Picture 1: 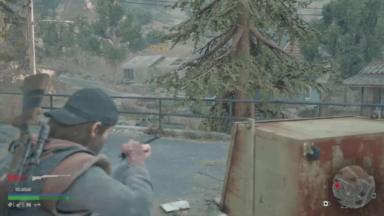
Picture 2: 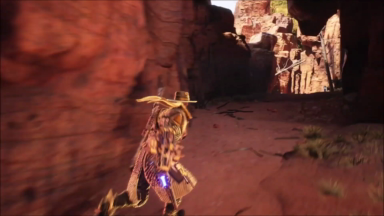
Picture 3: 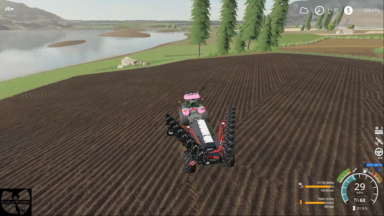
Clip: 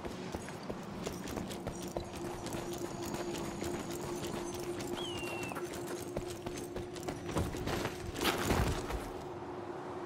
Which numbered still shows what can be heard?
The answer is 2